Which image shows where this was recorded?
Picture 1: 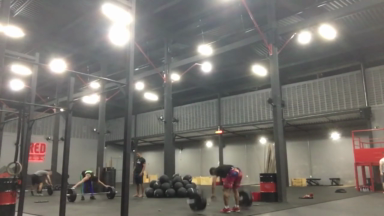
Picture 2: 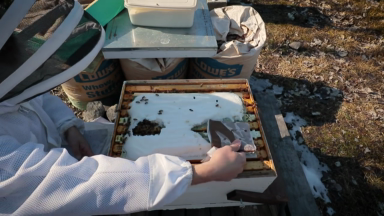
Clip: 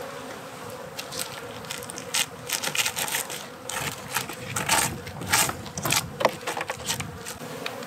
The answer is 2